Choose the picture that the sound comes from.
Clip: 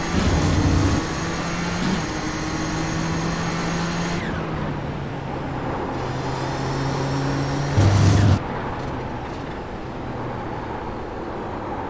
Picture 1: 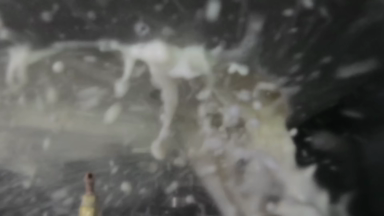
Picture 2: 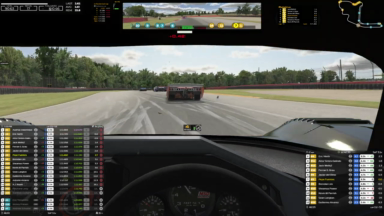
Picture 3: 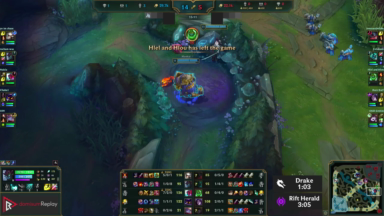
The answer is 2